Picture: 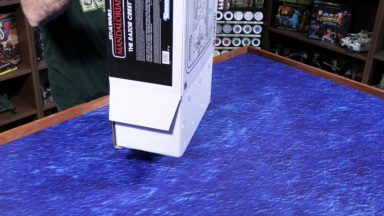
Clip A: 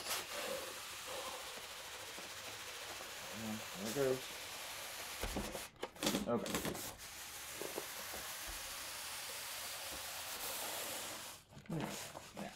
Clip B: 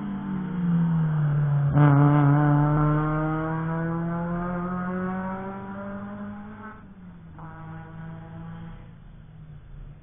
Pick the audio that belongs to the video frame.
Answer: A